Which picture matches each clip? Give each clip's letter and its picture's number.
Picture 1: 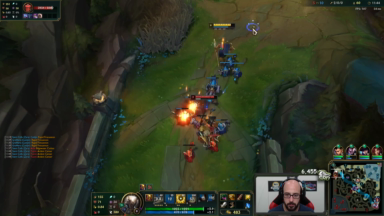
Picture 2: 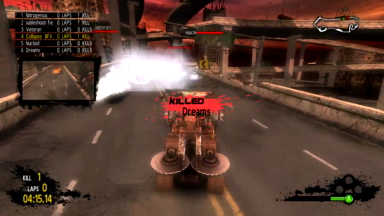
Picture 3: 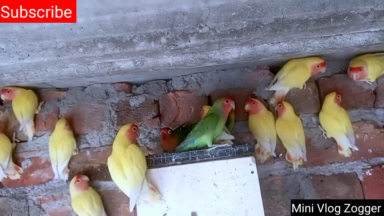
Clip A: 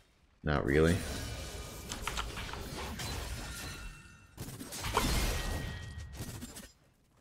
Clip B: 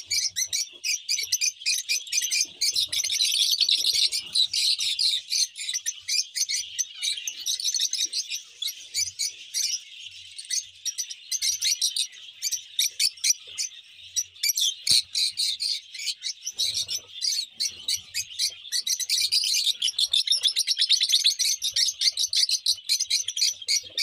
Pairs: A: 1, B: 3